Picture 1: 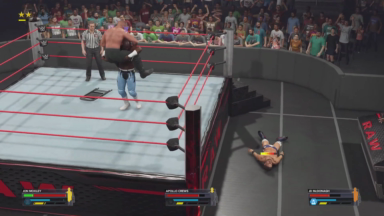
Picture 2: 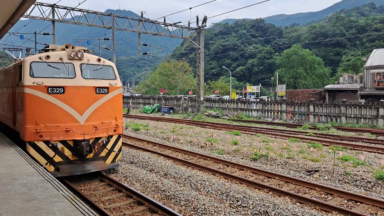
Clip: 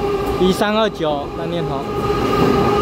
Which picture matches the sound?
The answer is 2